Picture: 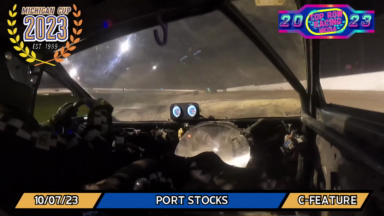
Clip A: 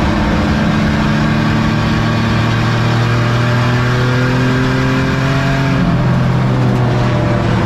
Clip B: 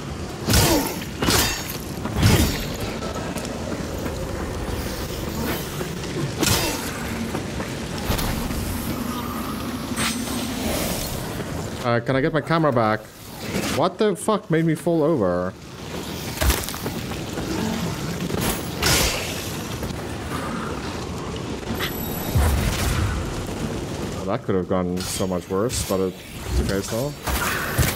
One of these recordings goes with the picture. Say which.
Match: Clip A